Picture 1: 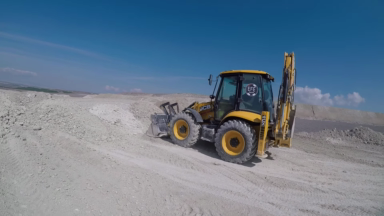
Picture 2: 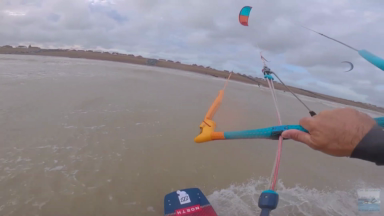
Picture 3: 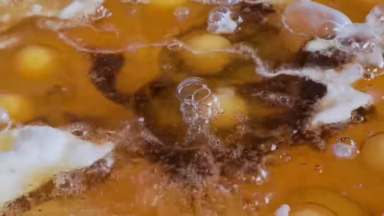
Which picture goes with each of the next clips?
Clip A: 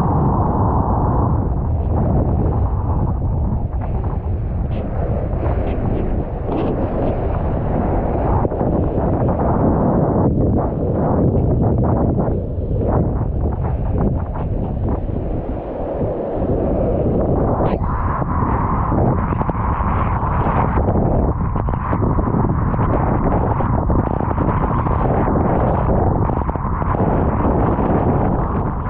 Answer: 2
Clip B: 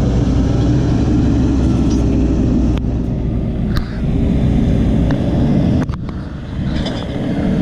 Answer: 1